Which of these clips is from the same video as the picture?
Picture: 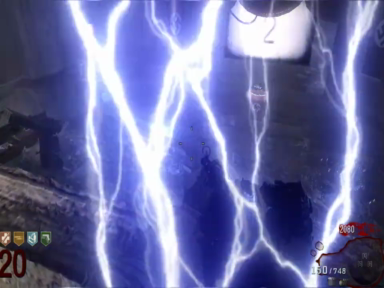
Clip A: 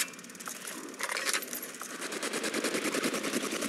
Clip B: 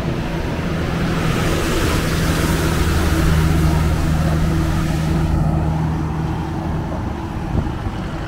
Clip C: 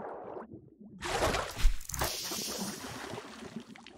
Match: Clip A